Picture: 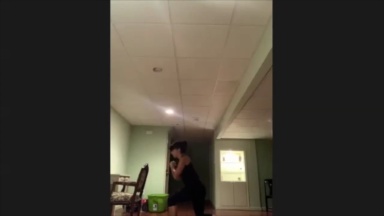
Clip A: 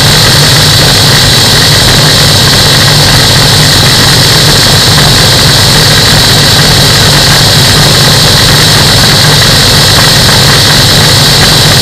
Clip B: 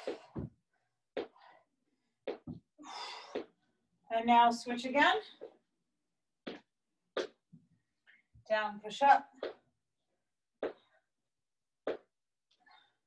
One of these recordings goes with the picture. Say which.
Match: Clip B